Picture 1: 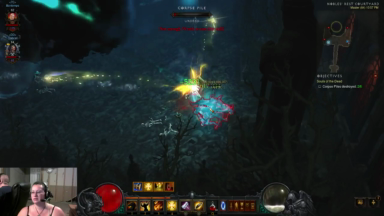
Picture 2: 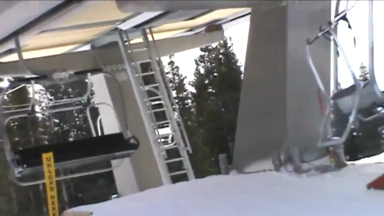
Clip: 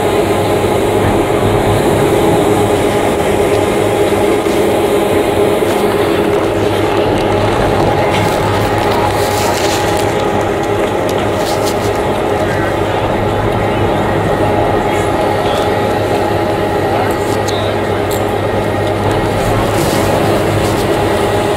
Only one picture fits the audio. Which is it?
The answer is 2